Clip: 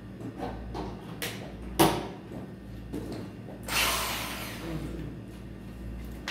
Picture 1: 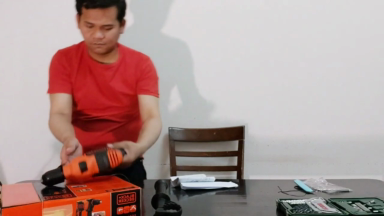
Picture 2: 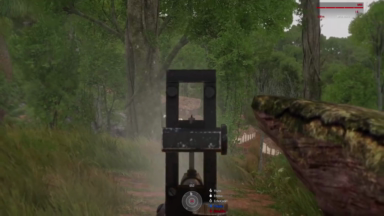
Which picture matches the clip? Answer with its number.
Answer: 1